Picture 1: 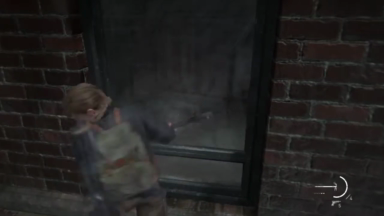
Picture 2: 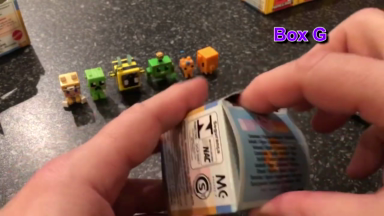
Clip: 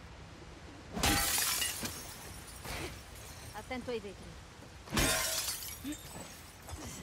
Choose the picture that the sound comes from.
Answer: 1